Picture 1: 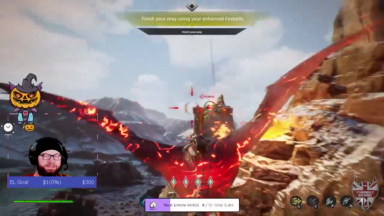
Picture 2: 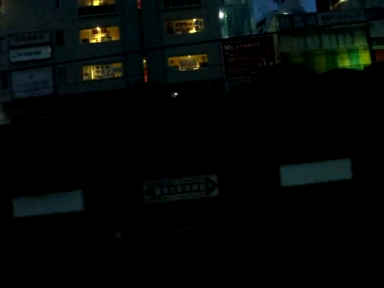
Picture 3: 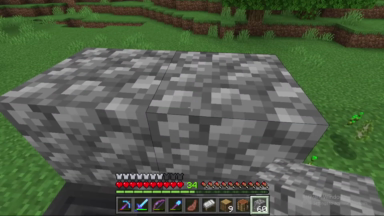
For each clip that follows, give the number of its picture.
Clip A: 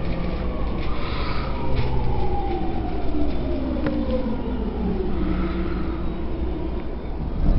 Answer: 2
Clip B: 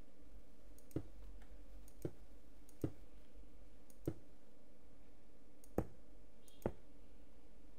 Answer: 3